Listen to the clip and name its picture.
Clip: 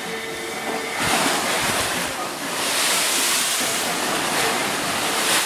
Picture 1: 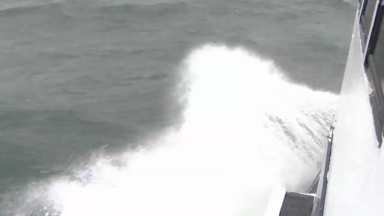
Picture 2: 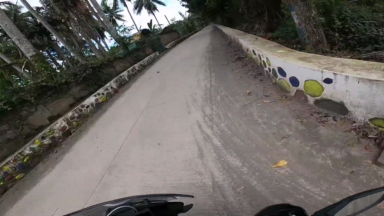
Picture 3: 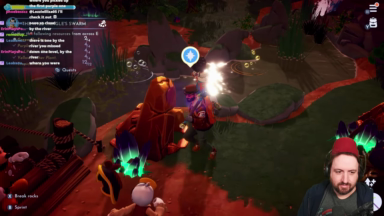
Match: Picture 1